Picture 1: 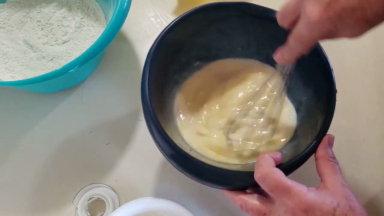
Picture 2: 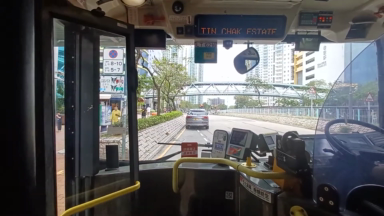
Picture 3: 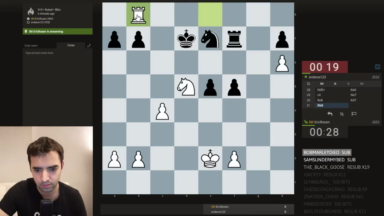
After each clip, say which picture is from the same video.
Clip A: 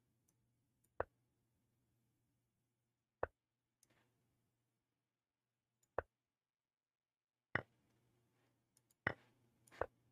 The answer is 3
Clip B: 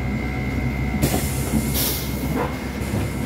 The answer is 2